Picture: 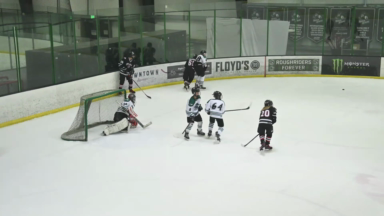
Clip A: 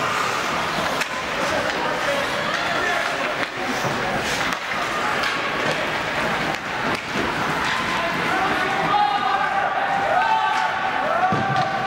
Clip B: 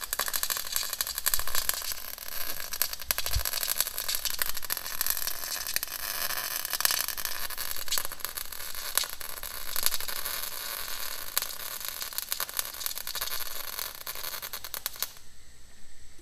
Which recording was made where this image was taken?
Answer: A